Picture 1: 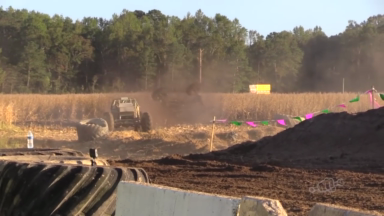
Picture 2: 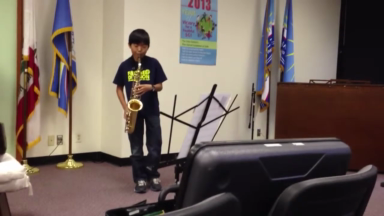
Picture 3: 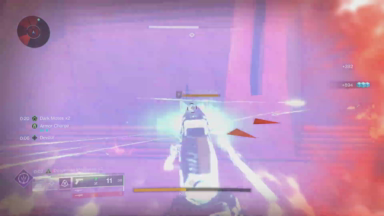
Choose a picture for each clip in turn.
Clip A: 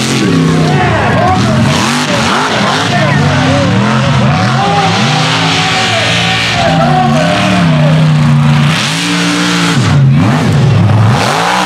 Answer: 1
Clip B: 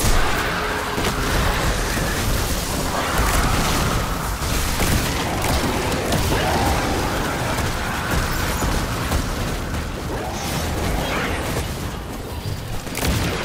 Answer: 3